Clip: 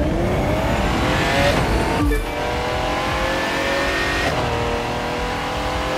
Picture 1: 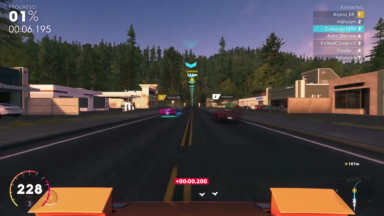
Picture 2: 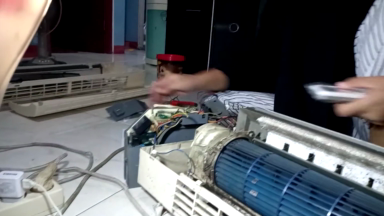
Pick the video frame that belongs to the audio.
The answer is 1